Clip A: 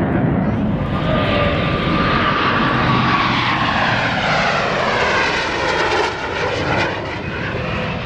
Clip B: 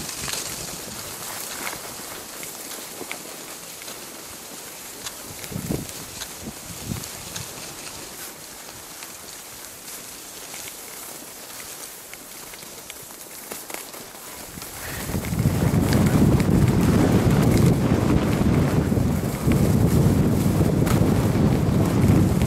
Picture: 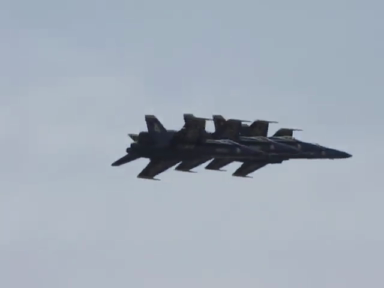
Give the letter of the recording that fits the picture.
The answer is A